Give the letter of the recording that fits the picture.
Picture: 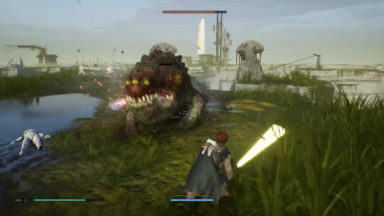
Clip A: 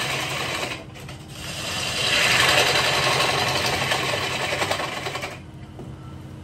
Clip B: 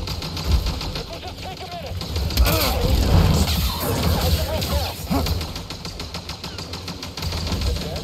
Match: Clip B